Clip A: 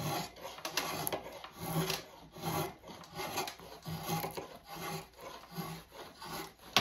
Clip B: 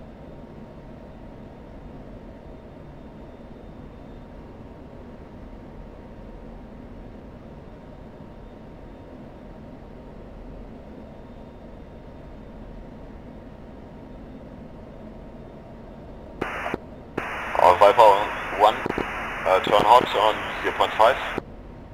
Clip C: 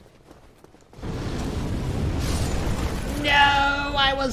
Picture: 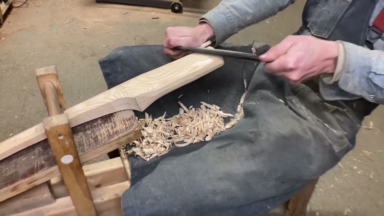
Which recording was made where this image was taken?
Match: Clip A